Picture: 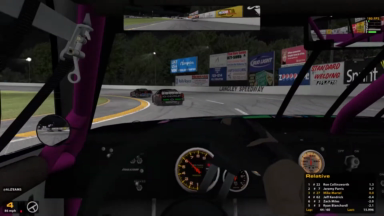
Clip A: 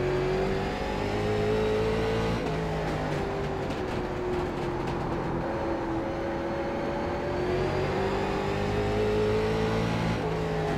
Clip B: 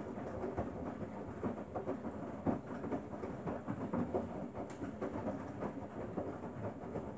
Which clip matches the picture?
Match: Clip A